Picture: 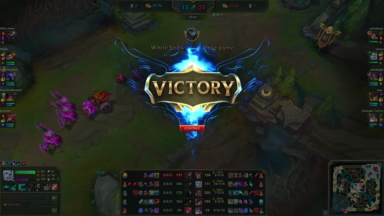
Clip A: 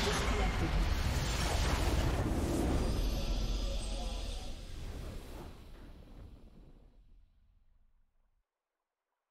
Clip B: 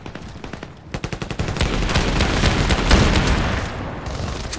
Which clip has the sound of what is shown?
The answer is A